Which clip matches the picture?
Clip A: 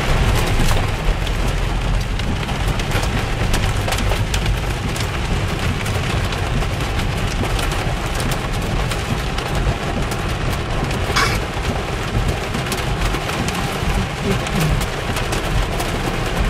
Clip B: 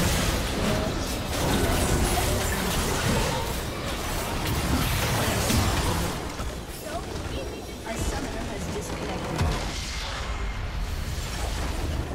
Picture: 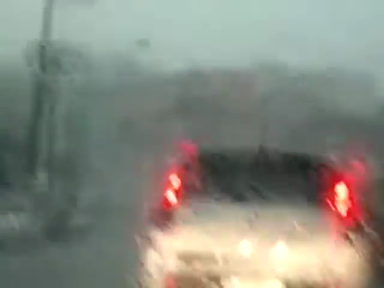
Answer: A